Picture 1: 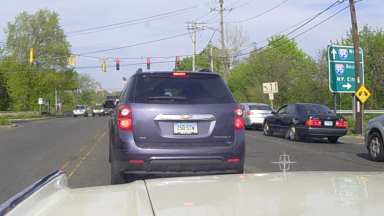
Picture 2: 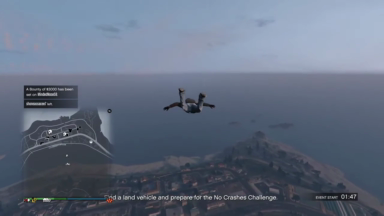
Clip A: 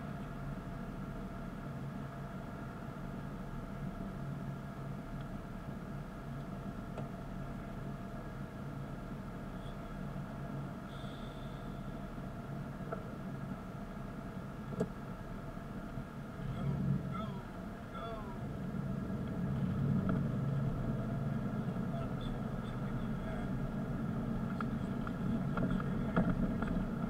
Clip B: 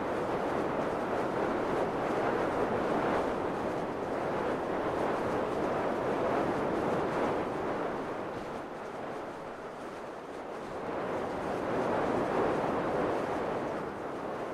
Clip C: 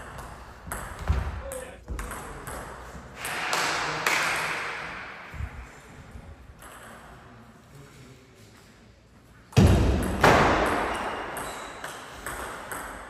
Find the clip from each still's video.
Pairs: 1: A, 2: B